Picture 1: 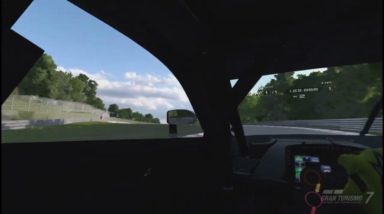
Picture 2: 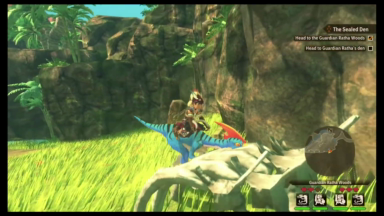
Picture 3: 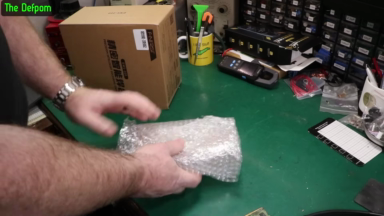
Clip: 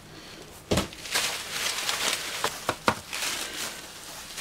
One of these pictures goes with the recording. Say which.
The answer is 3